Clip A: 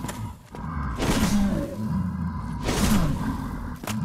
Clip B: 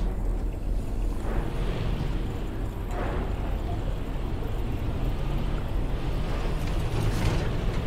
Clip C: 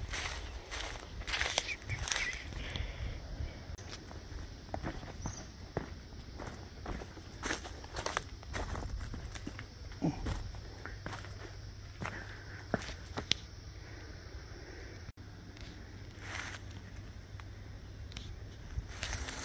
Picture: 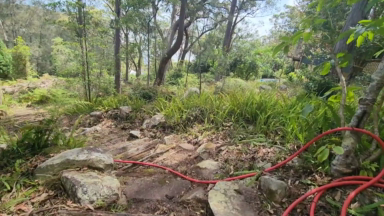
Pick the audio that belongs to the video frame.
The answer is C